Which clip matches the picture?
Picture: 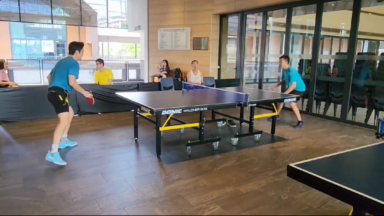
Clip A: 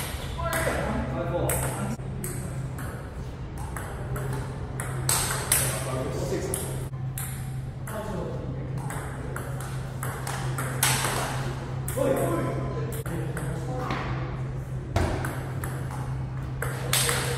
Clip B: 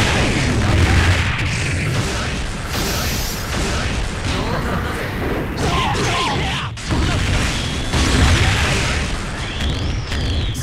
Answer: A